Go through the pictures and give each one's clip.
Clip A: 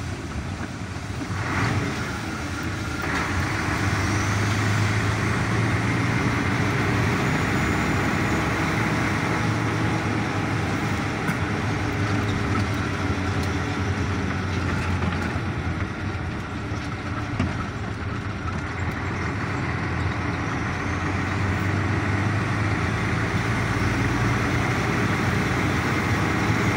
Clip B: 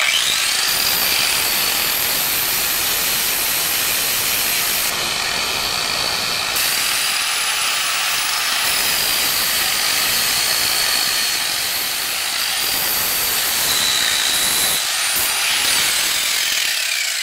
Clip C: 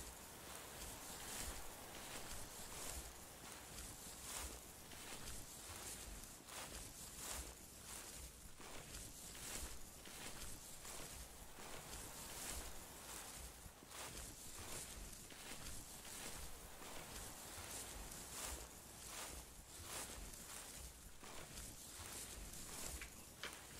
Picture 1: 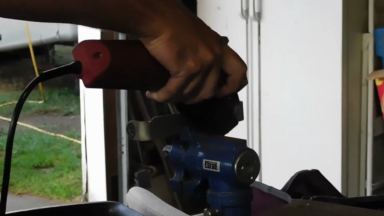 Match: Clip B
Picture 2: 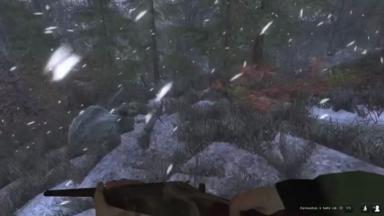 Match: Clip C